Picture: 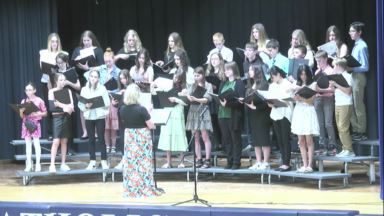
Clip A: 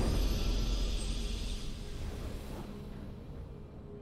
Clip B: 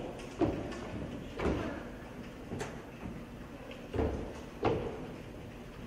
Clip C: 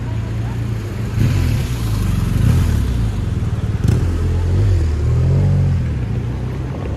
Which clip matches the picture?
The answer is B